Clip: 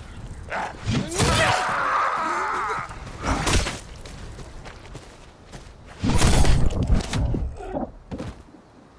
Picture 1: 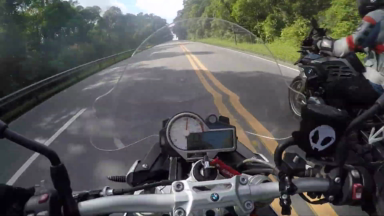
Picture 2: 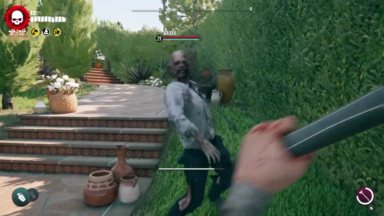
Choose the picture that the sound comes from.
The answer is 2